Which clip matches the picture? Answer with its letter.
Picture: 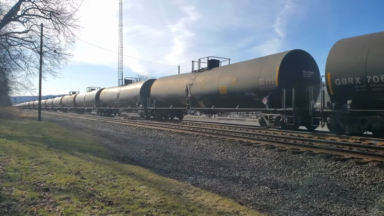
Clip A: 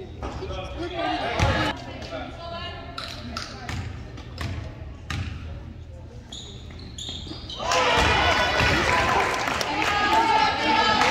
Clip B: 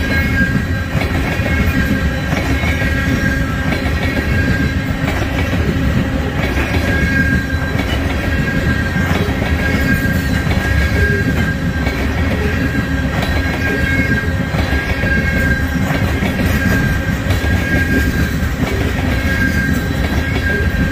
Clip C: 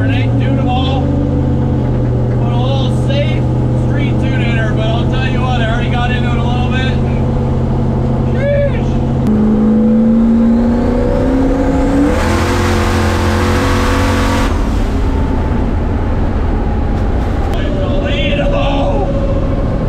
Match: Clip B